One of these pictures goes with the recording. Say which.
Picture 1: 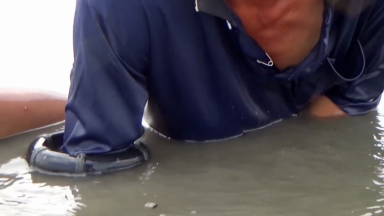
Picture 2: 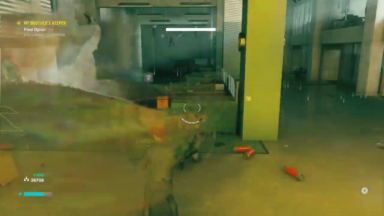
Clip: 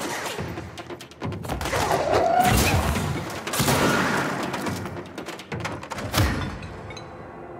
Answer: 2